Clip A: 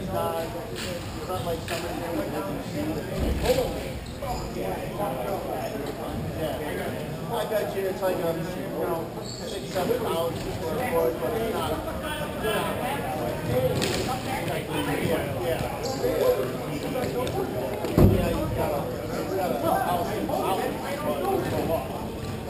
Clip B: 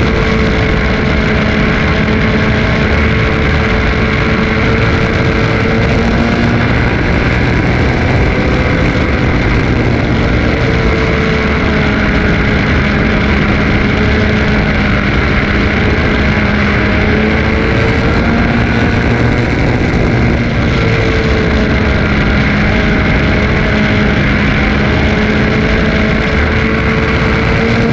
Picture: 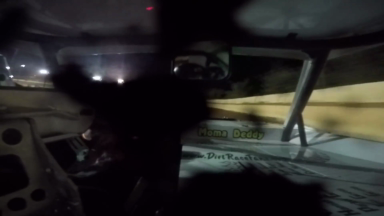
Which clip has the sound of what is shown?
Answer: B